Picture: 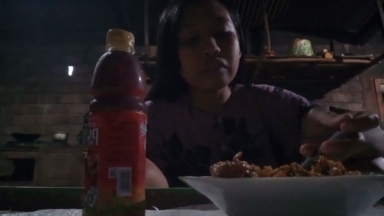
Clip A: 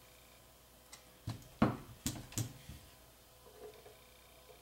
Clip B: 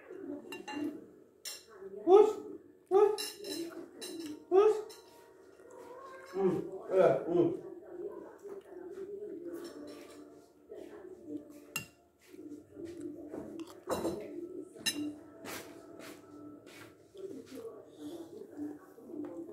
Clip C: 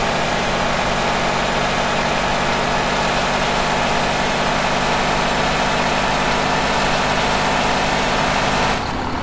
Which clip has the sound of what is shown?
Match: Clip B